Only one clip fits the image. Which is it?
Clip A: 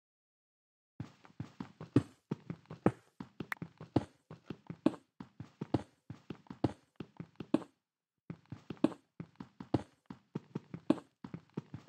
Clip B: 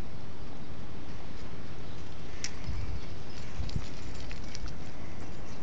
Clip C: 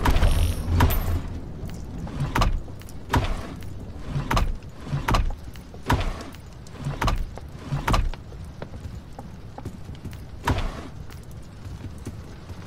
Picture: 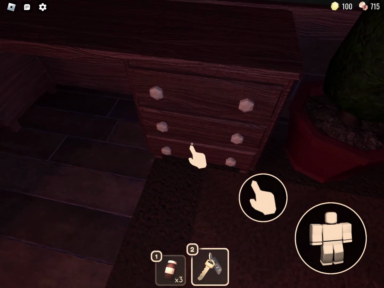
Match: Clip C